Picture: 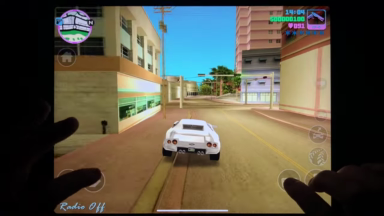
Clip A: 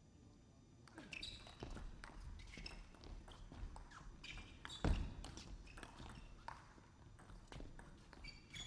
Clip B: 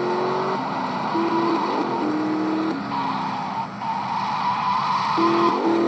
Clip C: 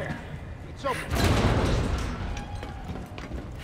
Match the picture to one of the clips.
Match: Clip B